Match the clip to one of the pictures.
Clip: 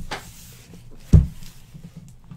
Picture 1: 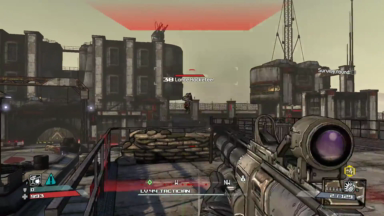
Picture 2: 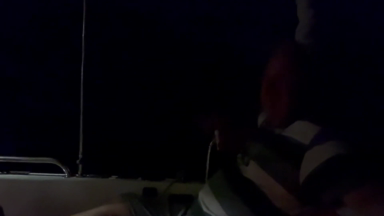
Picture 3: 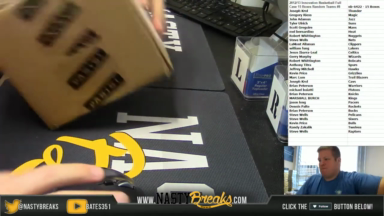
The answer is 3